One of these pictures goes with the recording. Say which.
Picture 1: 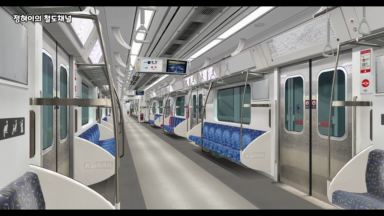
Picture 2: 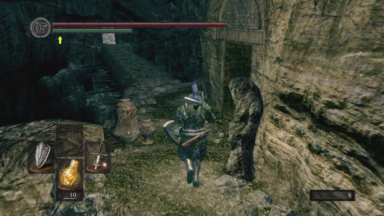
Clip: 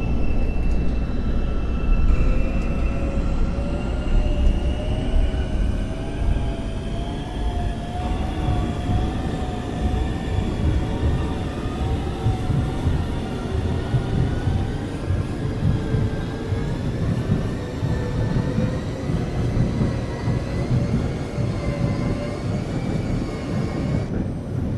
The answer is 1